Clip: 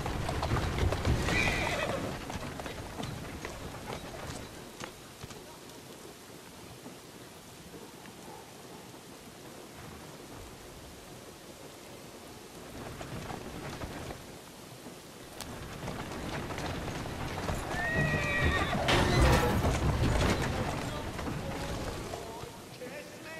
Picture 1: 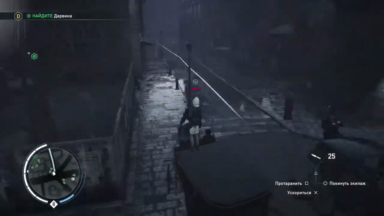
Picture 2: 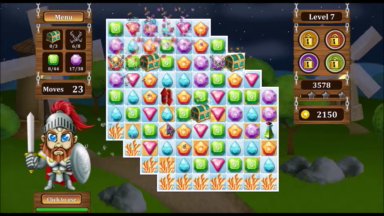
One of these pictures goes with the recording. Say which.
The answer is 1